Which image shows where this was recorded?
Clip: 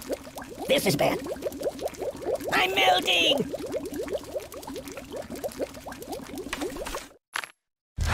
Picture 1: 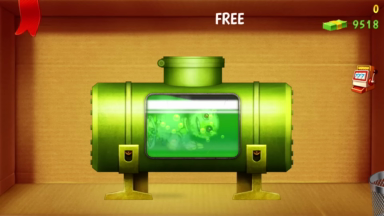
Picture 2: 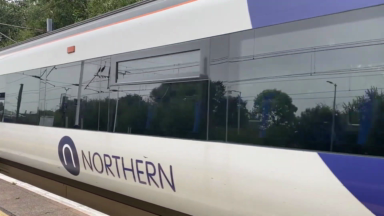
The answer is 1